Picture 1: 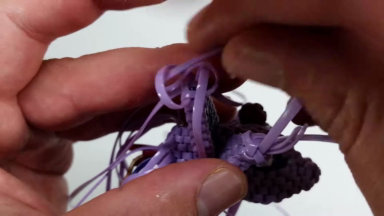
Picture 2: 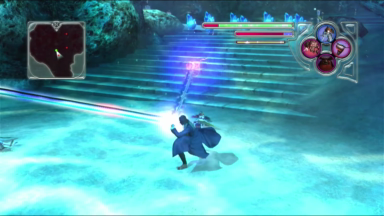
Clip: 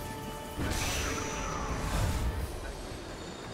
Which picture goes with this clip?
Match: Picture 2